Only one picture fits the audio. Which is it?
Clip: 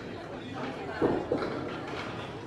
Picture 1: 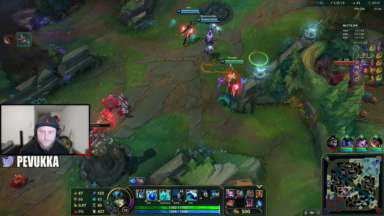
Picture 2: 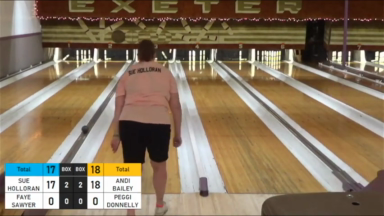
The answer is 2